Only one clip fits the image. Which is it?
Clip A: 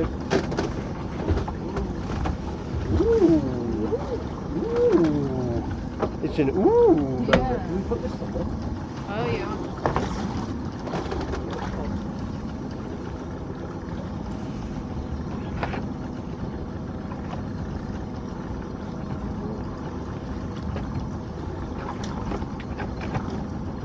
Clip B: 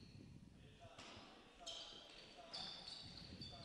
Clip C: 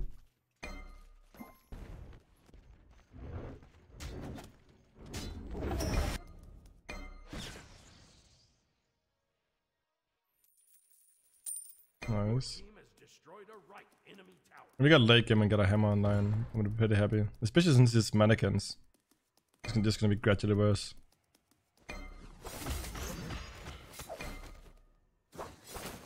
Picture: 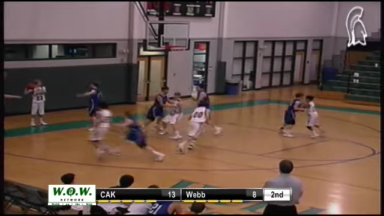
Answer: B